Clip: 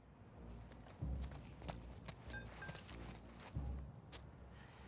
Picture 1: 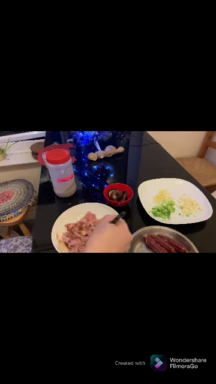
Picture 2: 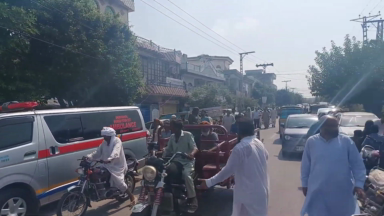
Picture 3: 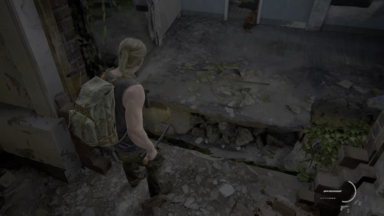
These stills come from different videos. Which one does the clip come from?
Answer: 3